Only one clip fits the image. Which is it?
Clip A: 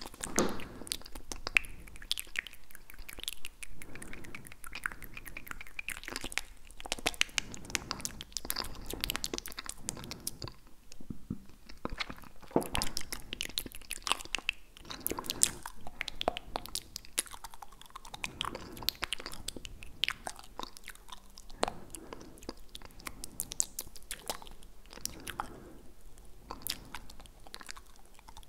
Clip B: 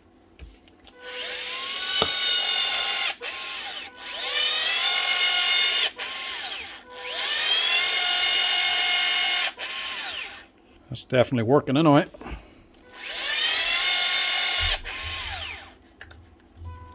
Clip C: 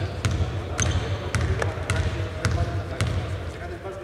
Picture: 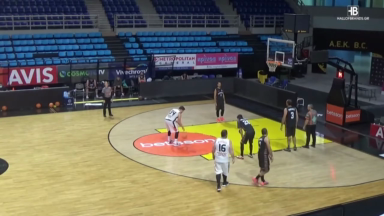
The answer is C